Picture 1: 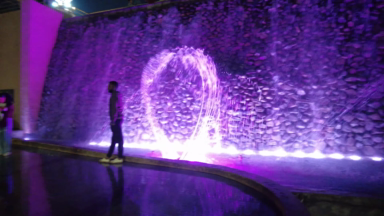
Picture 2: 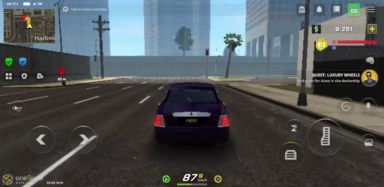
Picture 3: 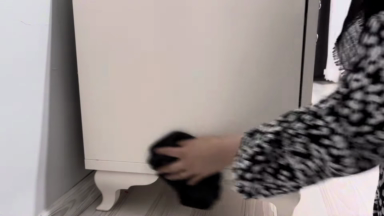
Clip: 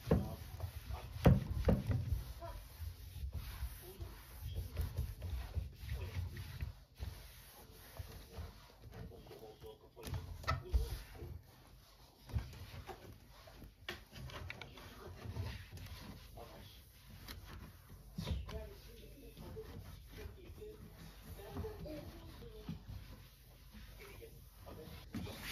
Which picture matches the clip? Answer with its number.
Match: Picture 3